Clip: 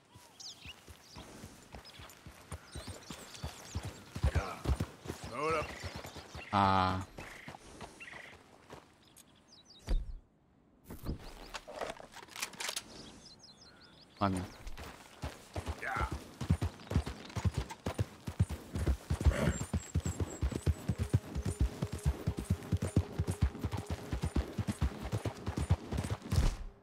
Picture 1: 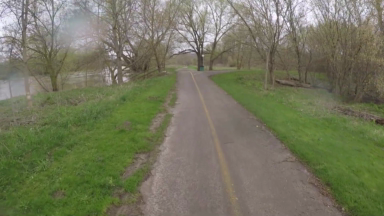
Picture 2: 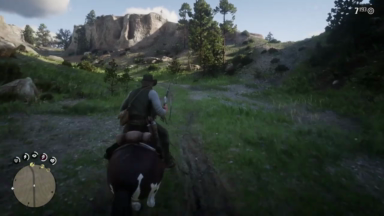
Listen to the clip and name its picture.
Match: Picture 2